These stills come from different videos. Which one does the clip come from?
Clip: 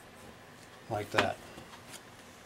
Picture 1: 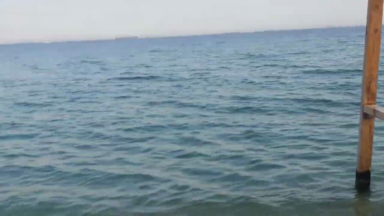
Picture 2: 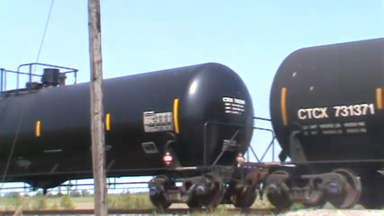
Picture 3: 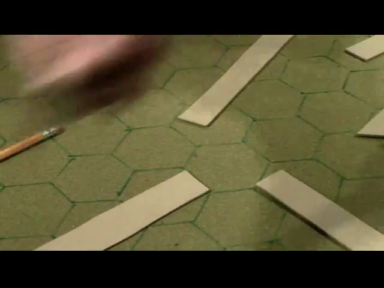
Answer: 3